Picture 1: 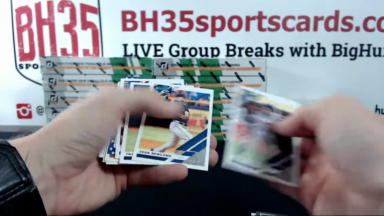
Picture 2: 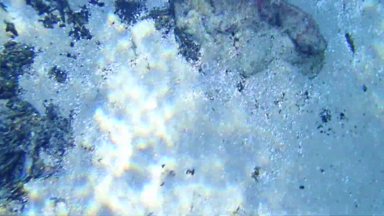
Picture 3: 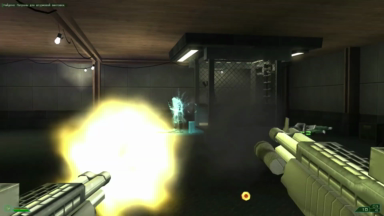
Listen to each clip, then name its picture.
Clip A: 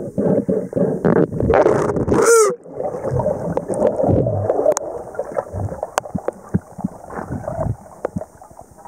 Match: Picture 2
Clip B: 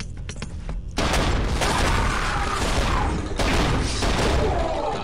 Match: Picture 3